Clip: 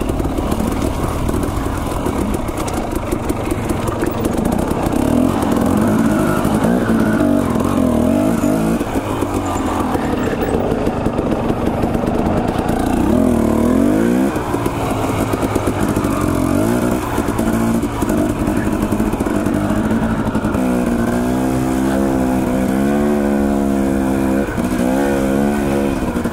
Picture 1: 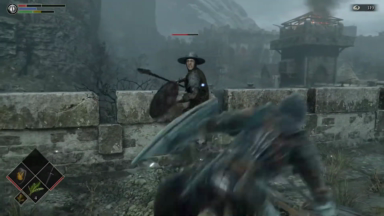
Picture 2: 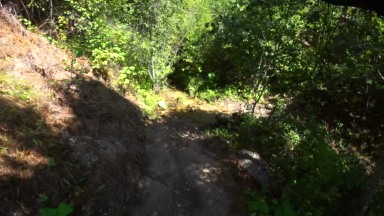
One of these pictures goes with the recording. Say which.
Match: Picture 2